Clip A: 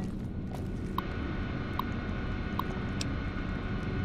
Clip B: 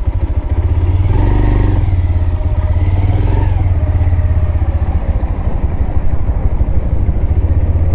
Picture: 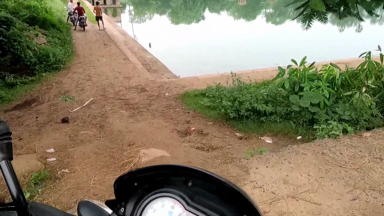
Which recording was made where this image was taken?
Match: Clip B